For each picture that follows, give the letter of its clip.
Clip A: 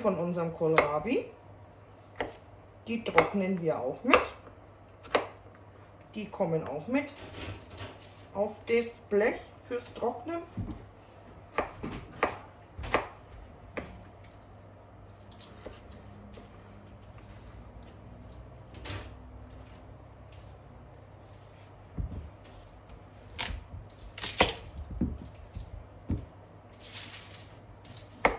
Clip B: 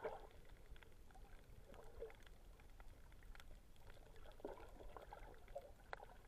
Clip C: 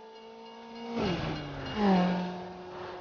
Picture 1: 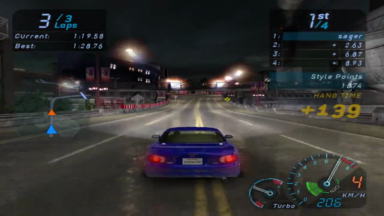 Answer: C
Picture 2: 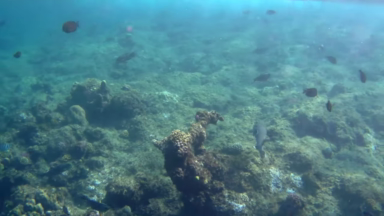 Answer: B